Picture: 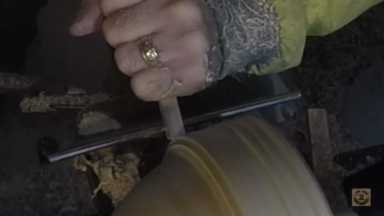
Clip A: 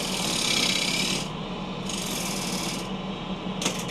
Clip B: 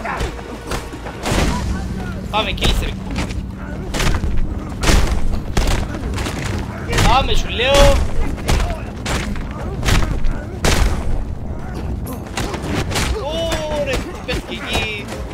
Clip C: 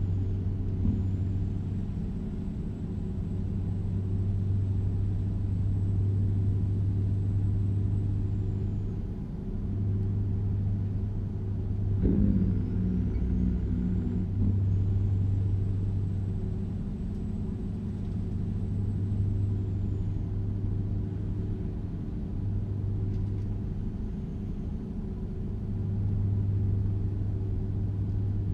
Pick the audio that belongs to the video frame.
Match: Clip A